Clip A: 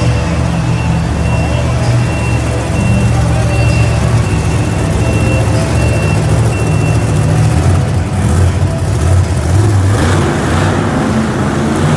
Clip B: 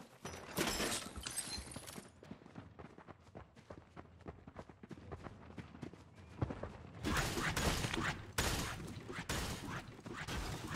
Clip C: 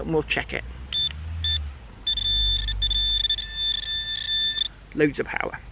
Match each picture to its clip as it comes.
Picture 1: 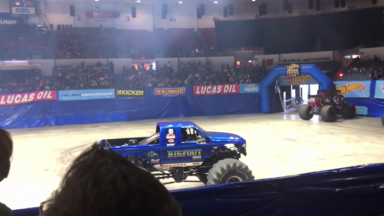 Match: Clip A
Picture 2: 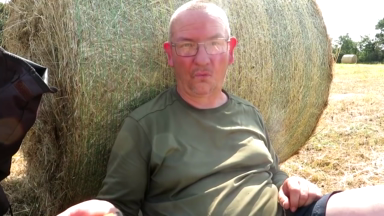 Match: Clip C